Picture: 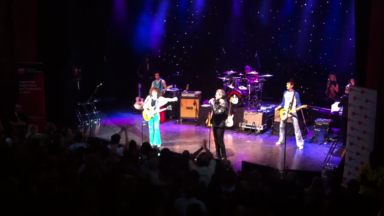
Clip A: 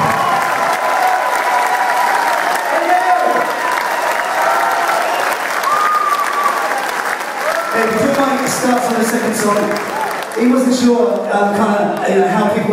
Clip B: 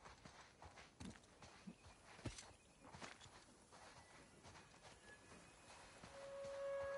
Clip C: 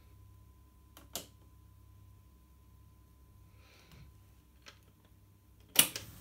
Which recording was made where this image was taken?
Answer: A